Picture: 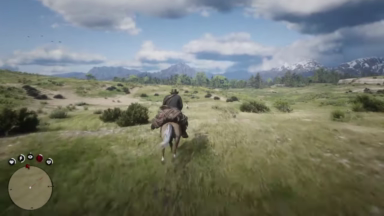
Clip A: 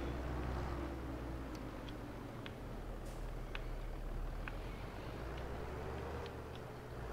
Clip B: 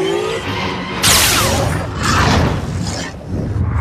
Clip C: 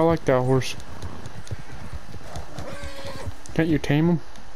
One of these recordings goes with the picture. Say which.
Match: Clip C